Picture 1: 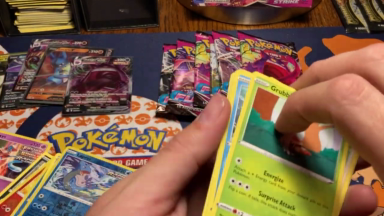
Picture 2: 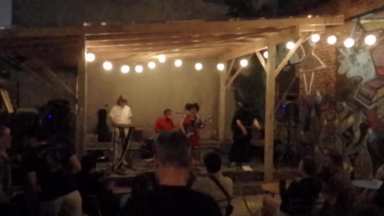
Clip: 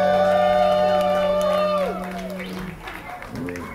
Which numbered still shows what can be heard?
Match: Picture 2